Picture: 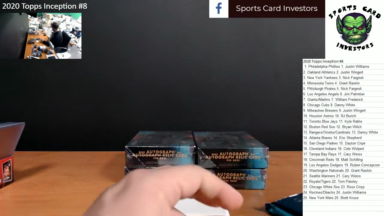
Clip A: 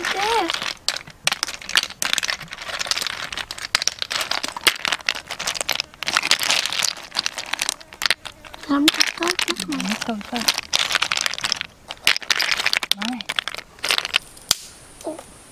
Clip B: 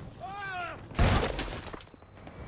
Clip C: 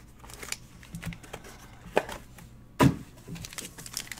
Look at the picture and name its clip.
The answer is C